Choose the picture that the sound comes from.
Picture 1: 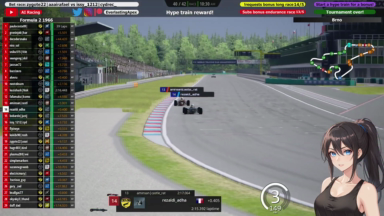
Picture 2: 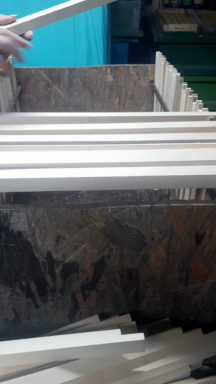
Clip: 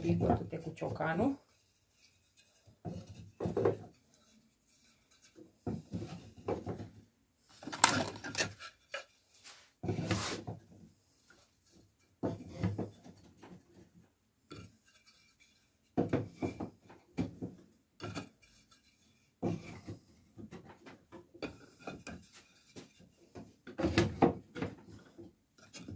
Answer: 2